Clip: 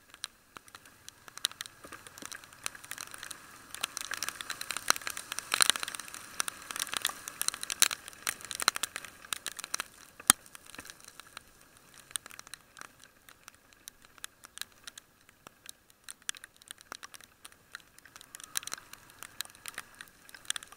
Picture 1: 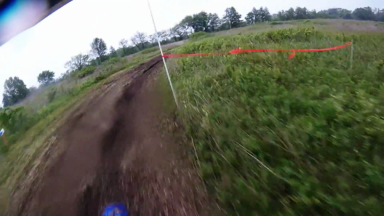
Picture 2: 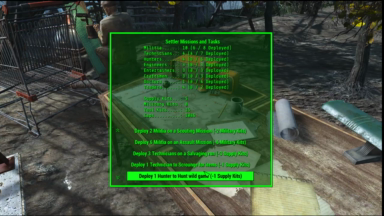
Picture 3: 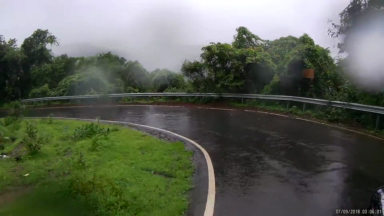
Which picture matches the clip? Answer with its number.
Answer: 3